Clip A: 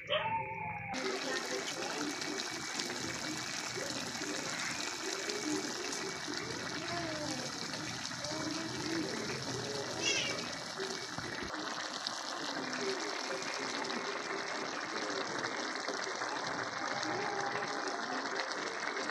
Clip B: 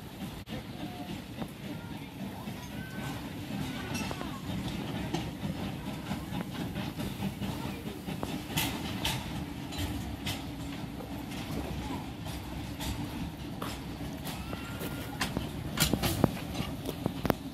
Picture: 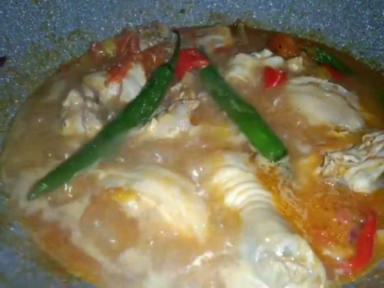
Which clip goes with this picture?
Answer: A